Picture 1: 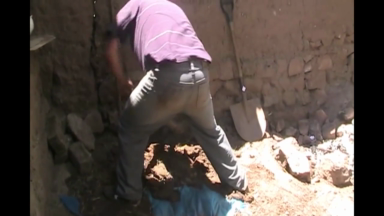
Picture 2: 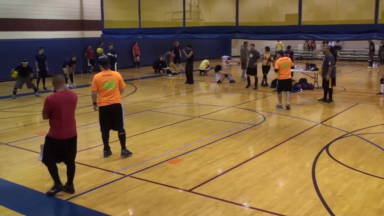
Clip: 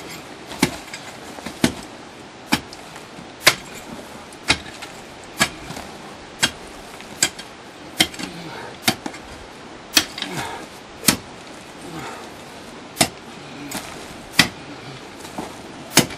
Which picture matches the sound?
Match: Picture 1